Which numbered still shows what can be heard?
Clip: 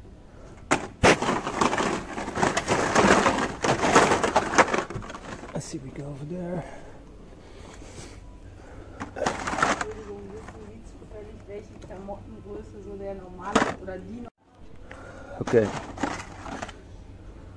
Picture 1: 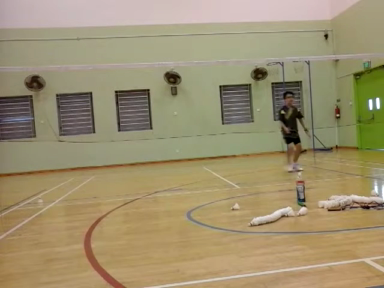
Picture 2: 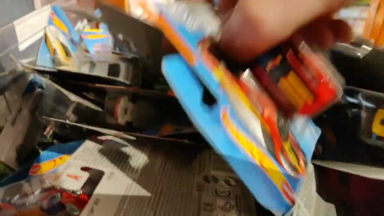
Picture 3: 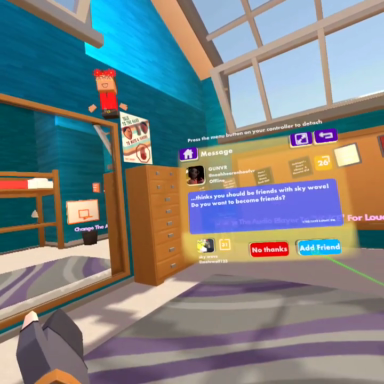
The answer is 2